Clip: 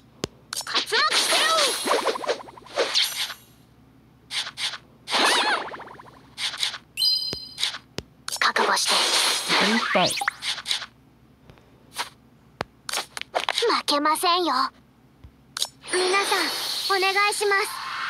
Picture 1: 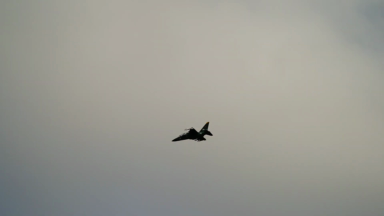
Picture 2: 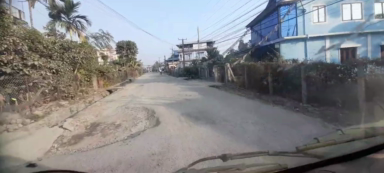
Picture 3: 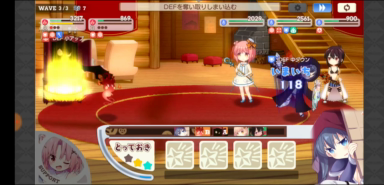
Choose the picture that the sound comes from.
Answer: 3